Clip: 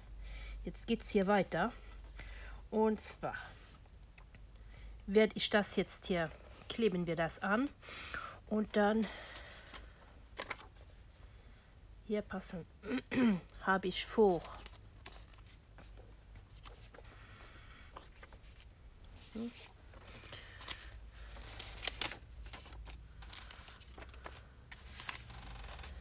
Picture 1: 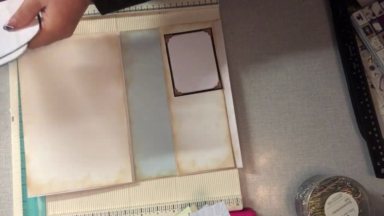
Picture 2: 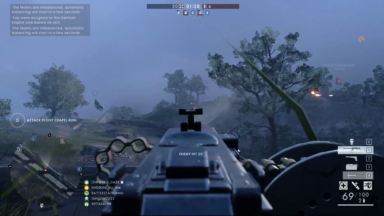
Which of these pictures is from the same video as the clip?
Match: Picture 1